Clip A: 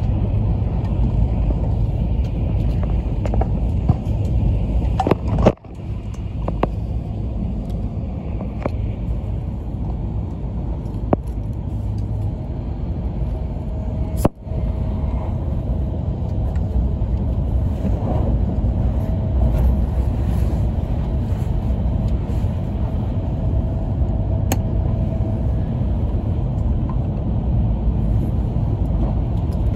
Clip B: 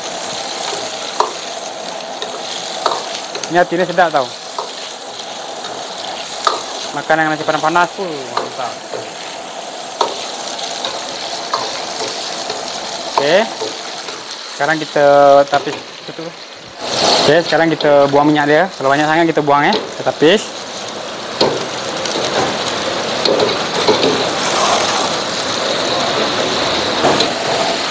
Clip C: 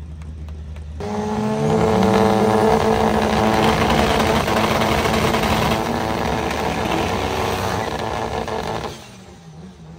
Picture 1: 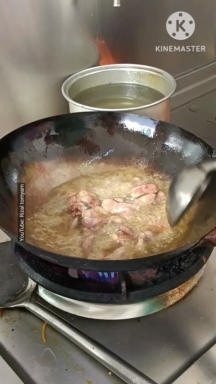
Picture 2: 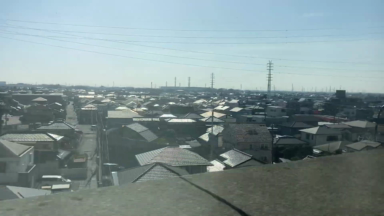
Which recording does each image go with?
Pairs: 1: B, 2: A